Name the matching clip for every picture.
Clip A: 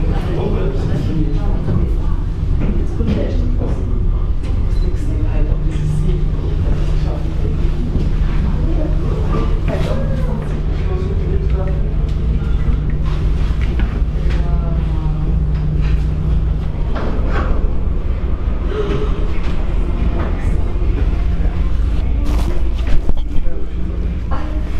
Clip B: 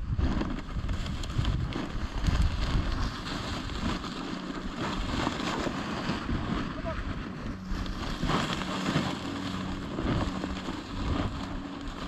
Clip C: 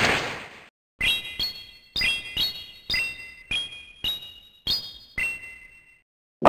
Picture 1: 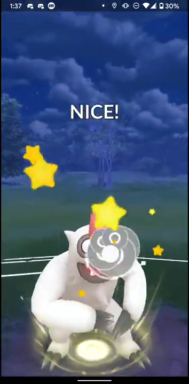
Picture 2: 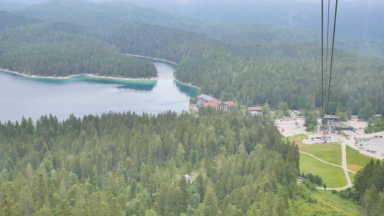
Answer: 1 C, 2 A